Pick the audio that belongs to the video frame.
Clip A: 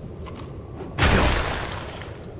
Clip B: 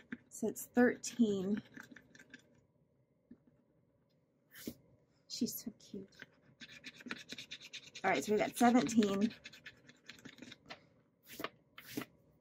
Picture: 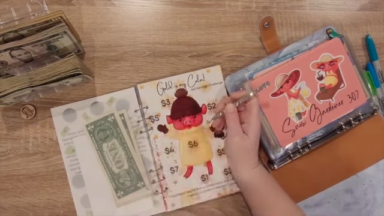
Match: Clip B